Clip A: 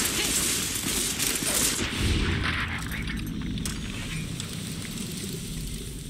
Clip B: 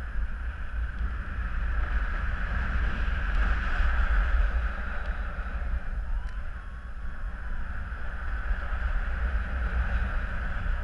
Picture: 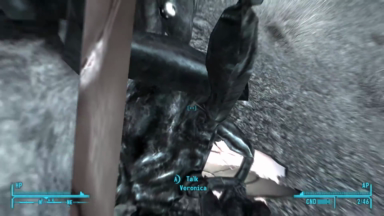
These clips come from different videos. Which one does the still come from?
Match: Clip A